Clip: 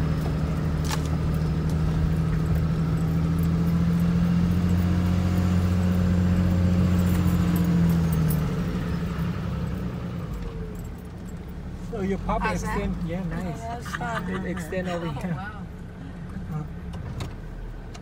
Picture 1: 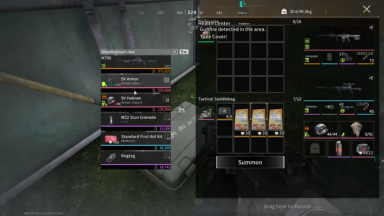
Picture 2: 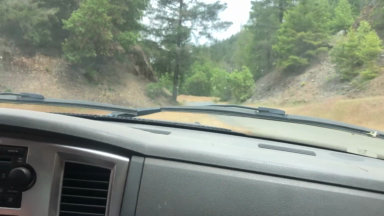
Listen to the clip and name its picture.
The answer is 2